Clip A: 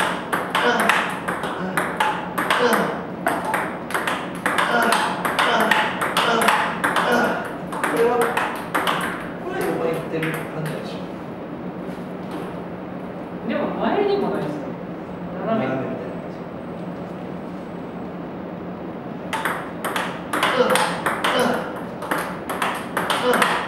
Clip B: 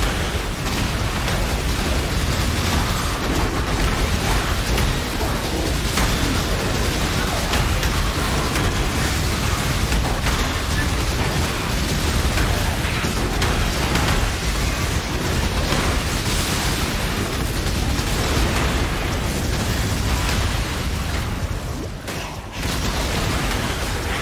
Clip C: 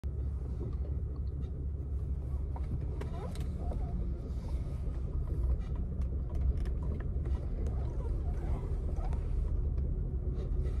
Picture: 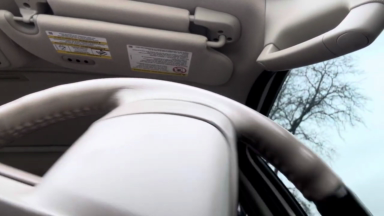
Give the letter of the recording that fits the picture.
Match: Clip C